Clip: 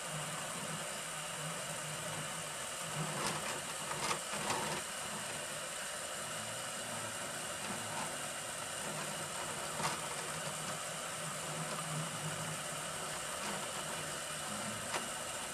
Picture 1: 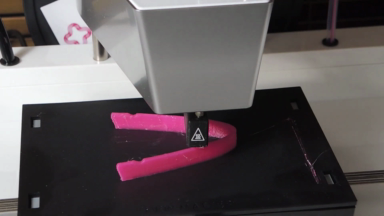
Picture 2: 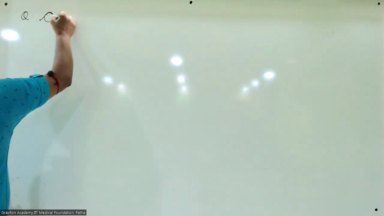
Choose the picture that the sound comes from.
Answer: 1